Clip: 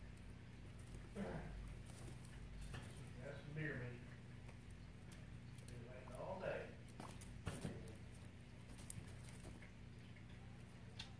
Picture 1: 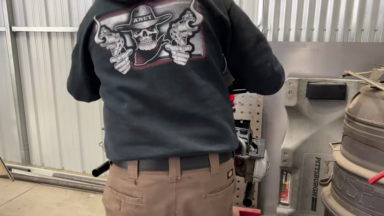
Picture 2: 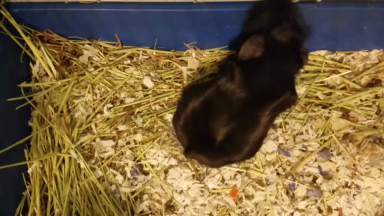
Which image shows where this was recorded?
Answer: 2